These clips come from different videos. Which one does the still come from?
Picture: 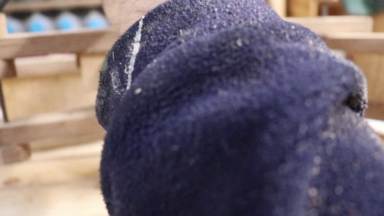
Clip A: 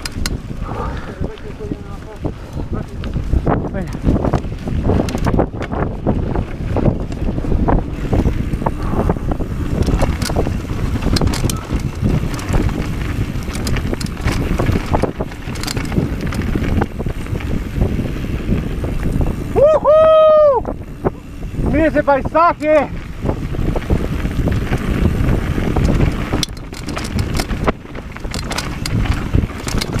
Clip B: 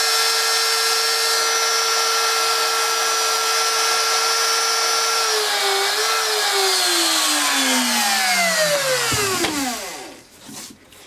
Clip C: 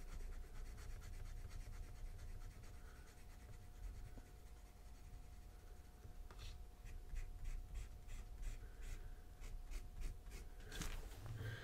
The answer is B